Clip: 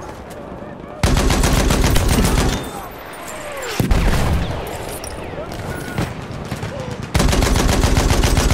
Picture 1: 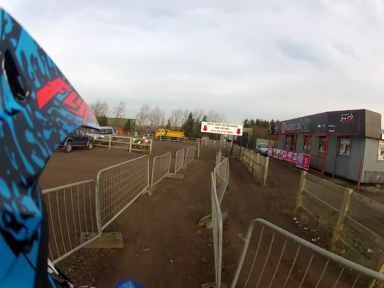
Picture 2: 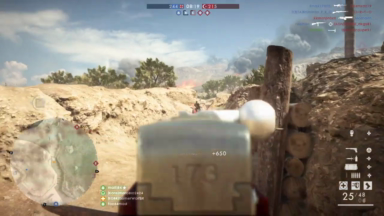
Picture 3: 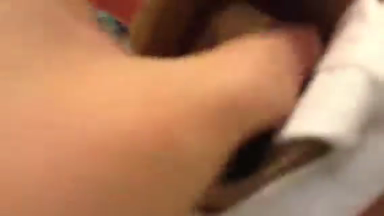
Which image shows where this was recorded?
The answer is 2